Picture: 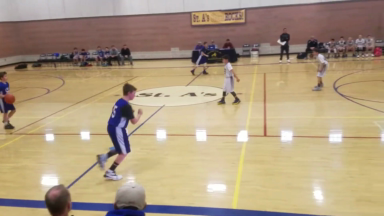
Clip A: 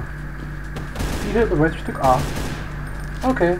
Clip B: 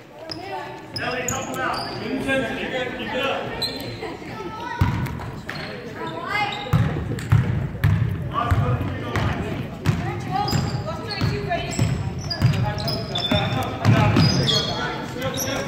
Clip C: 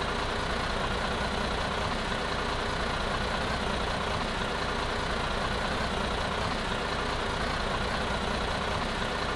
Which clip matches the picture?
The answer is B